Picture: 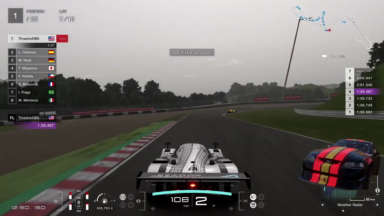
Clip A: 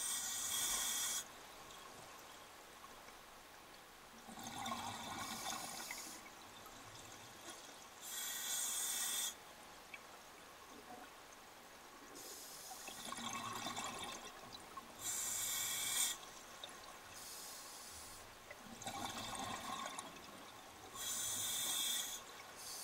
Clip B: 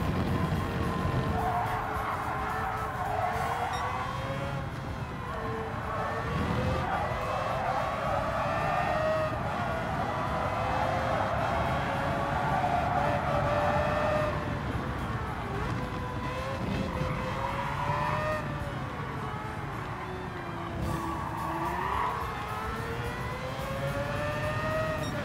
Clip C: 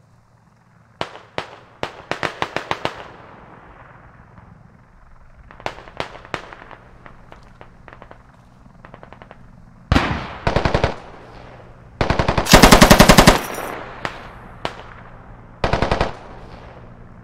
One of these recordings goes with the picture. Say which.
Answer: B